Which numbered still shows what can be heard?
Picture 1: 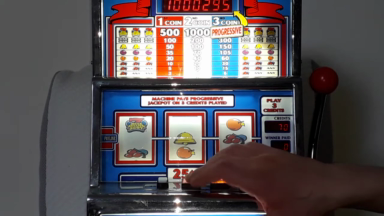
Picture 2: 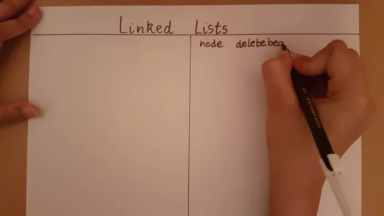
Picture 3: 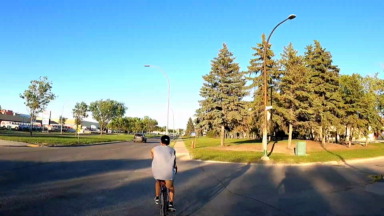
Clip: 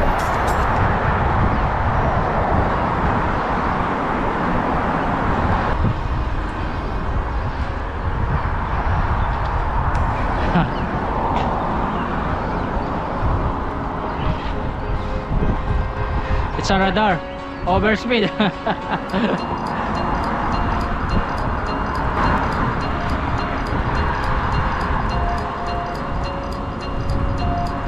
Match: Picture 3